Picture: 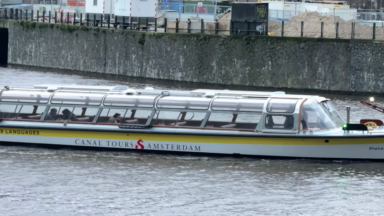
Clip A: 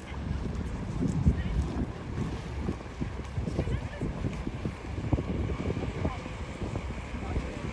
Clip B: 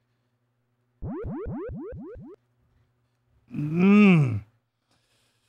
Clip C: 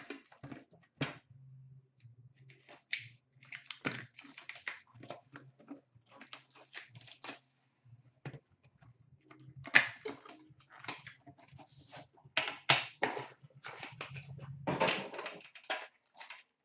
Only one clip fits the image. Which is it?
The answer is A